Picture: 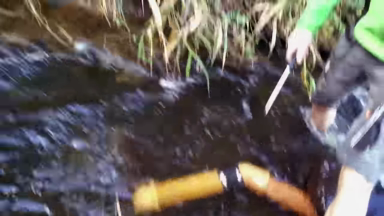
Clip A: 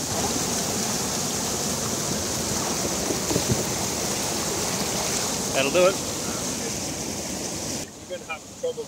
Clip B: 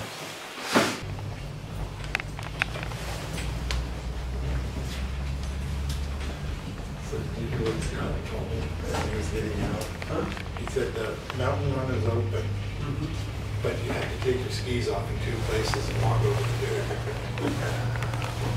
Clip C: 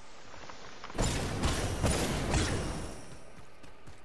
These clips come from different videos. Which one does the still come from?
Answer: A